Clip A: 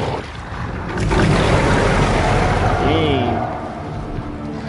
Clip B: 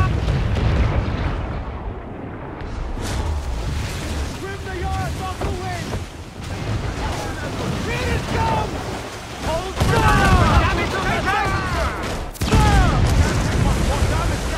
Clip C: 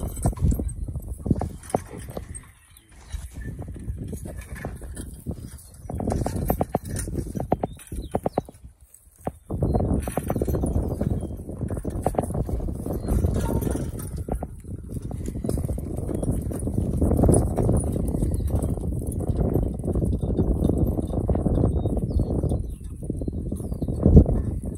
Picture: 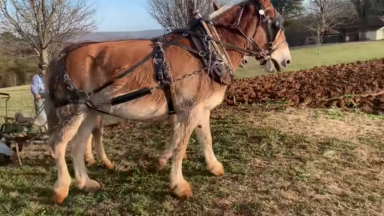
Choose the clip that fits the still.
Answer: C